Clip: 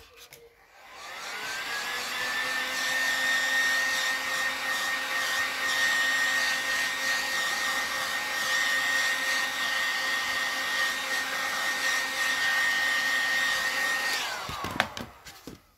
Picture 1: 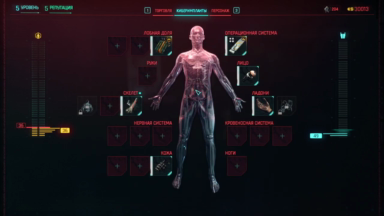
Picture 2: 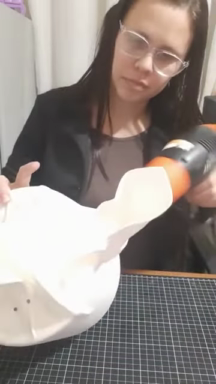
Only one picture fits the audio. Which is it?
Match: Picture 2